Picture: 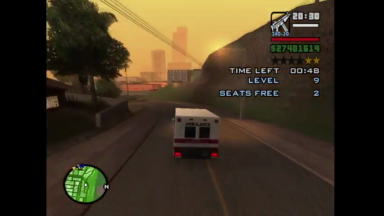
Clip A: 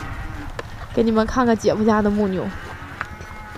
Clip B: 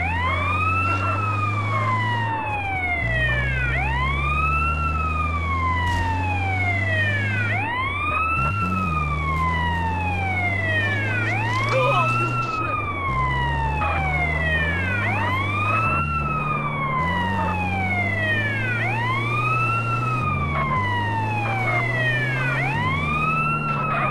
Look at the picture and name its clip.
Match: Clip B